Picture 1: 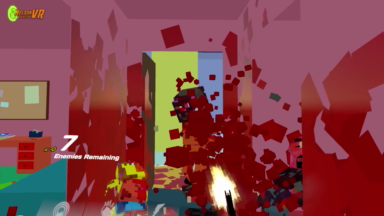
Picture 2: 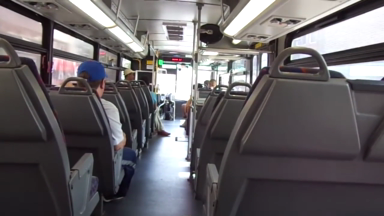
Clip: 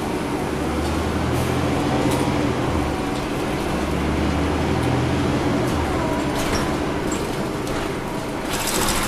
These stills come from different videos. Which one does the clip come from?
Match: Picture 2